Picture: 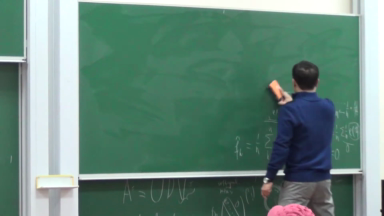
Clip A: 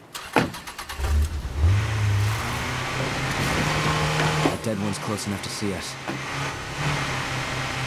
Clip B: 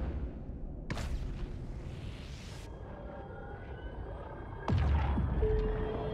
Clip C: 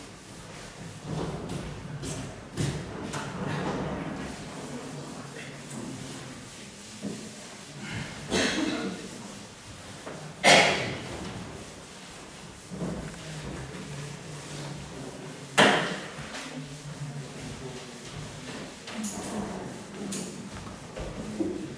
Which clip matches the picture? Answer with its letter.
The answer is C